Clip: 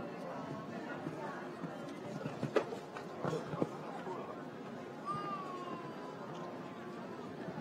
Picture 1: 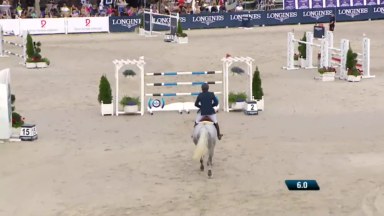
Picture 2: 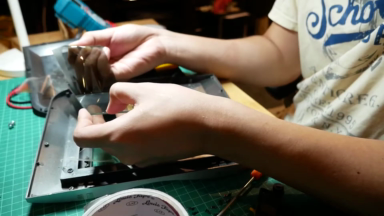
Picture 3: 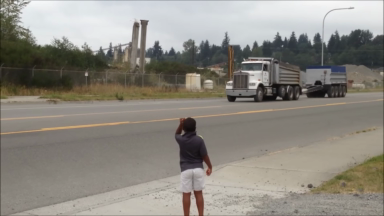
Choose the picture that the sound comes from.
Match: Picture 1